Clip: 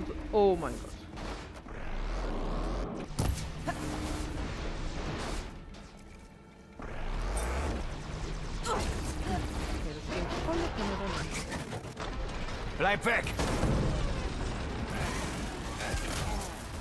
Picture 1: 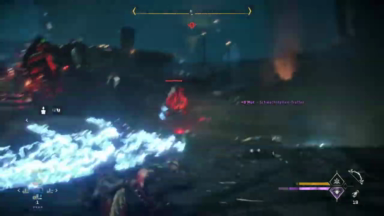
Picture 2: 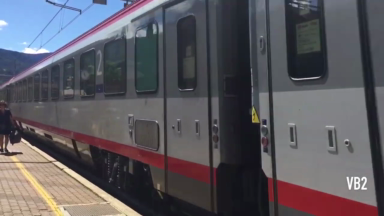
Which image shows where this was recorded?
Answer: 1